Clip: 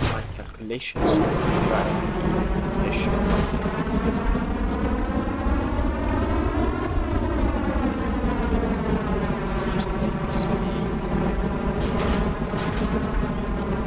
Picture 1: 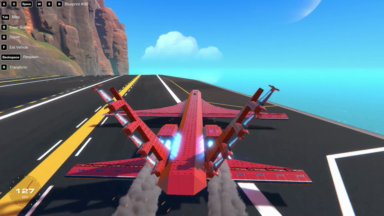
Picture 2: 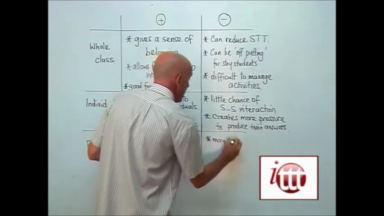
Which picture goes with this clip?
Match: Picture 1